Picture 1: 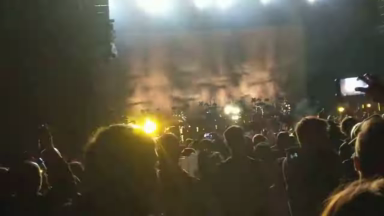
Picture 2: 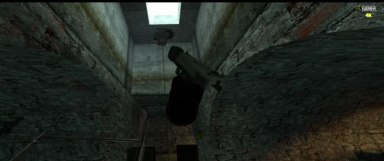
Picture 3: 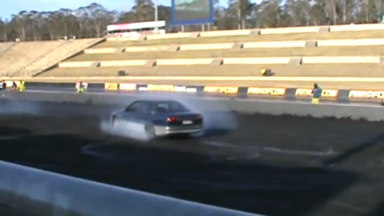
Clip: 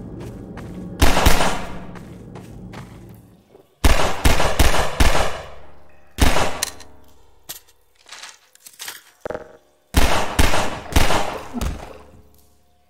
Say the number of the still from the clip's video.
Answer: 2